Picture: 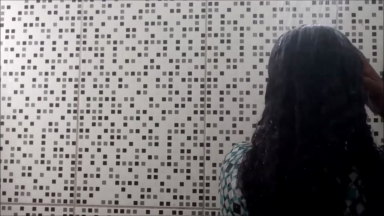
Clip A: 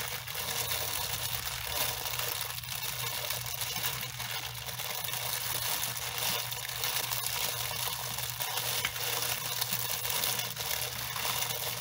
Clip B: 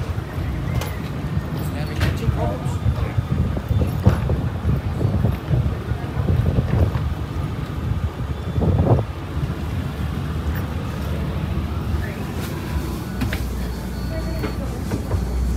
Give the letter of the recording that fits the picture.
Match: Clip A